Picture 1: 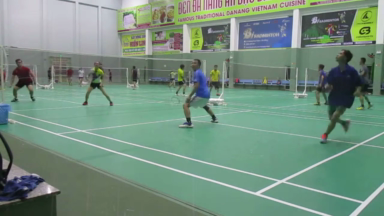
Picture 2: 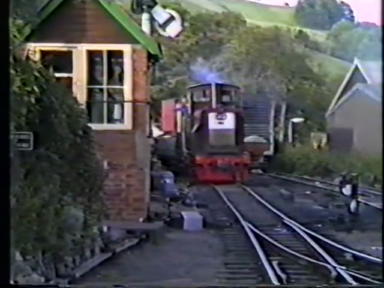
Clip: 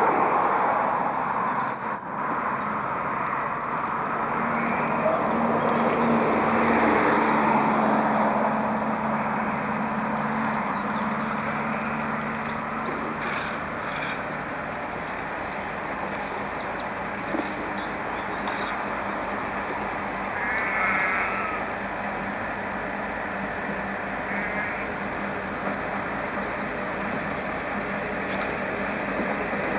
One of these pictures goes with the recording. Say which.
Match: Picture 2